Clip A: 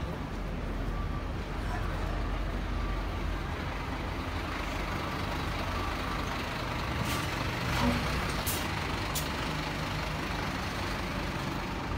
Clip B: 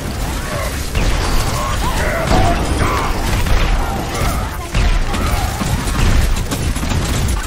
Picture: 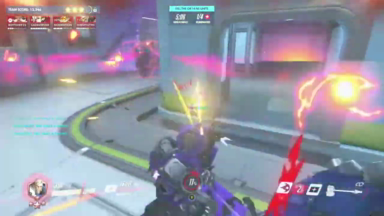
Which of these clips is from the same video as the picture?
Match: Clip B